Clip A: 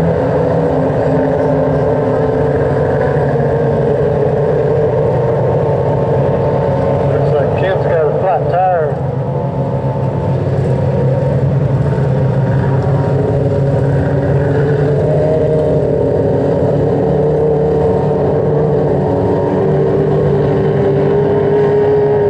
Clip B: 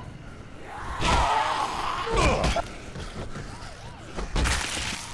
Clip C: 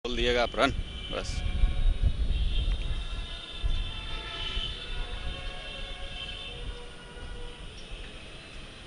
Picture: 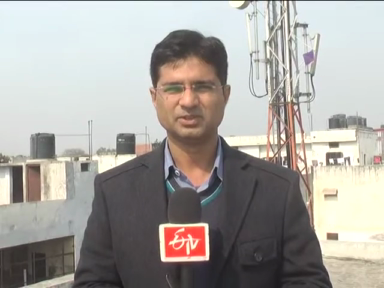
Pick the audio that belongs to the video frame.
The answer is C